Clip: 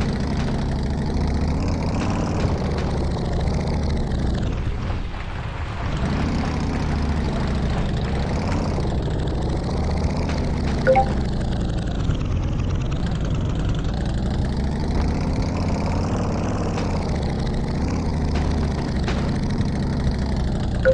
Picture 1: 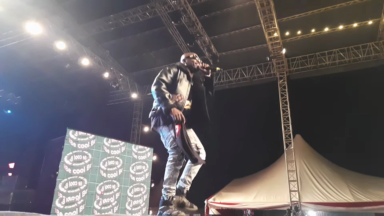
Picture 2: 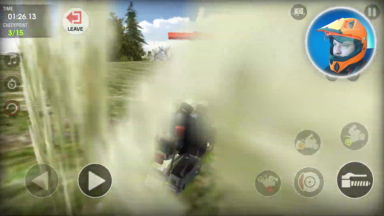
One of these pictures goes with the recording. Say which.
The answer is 2